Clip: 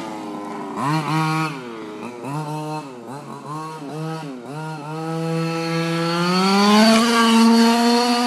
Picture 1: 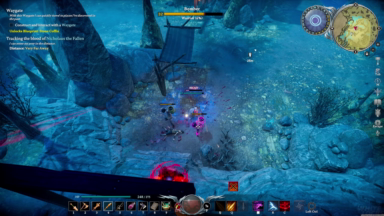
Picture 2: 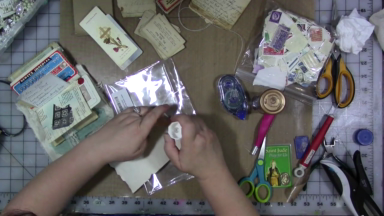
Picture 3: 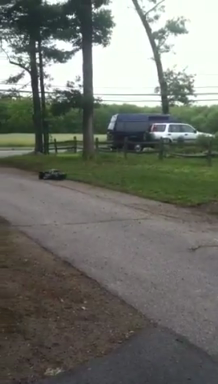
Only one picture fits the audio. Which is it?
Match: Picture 3